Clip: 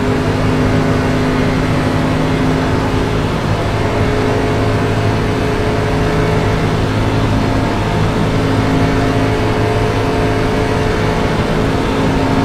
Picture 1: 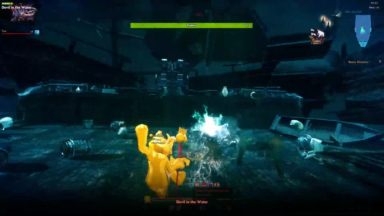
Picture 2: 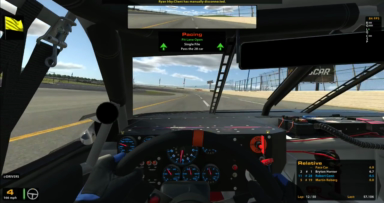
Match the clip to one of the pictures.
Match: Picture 2